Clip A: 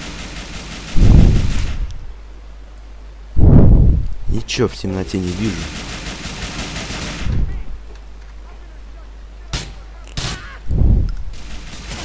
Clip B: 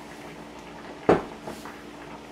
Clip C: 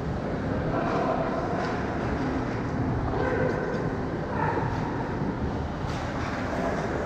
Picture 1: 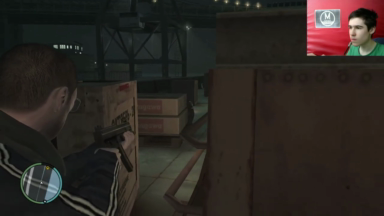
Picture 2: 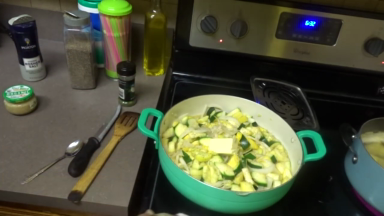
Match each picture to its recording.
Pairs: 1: A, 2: B